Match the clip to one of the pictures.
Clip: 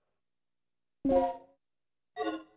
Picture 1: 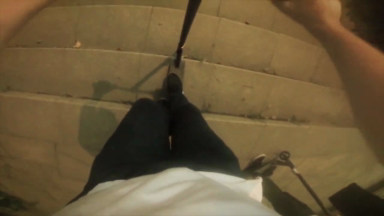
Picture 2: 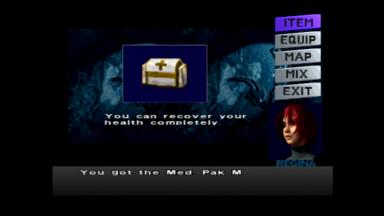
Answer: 2